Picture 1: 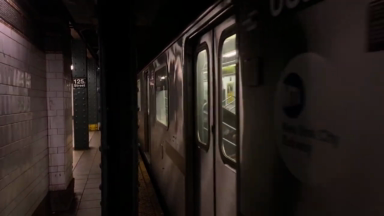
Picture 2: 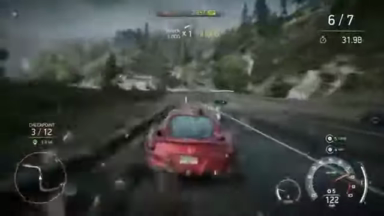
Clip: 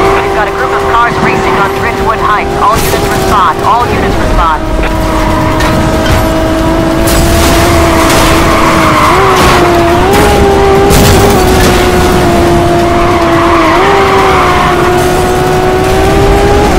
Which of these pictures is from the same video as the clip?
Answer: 2